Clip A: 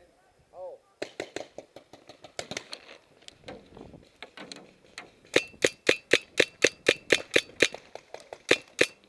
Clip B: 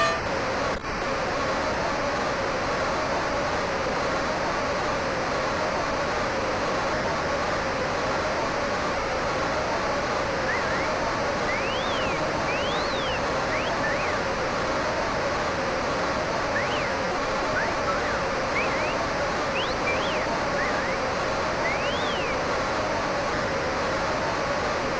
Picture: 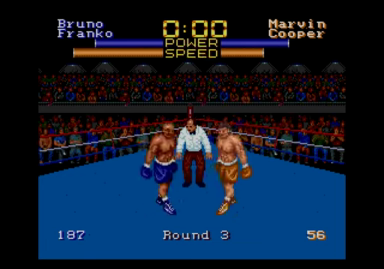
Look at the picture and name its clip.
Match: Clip B